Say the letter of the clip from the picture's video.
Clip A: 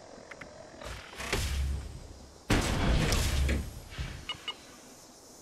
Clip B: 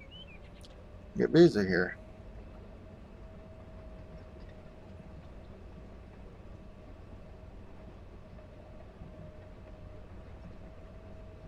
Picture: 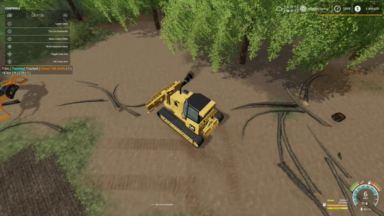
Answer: B